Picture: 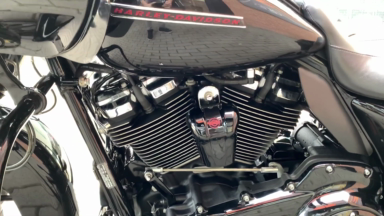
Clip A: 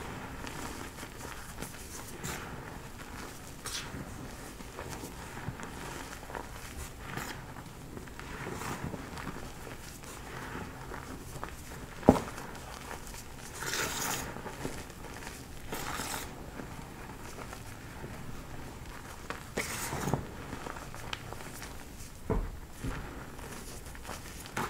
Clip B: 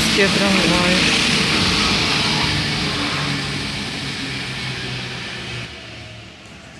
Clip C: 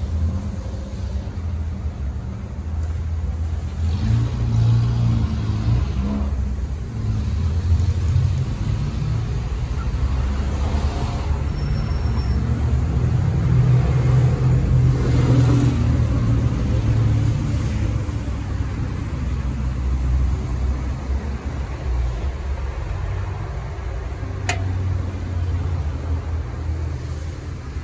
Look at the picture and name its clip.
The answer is C